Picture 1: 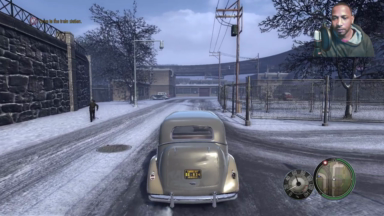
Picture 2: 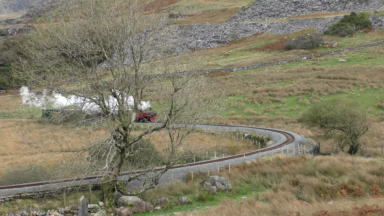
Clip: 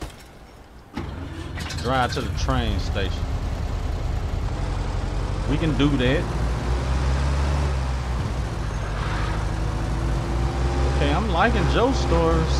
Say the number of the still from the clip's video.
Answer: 1